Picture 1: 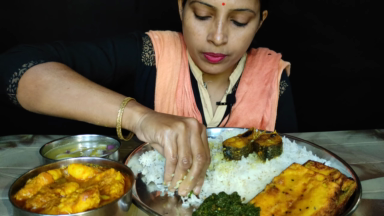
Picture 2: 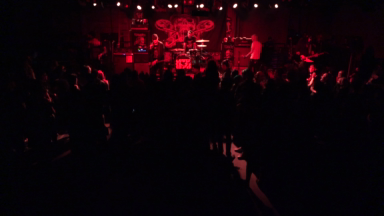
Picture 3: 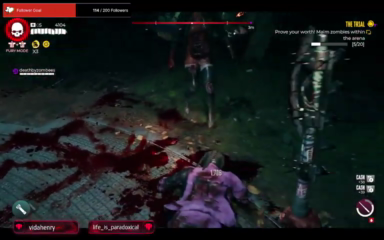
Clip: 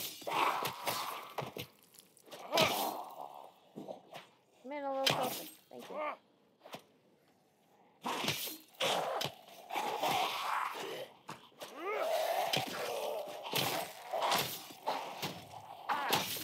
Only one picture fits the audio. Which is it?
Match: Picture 3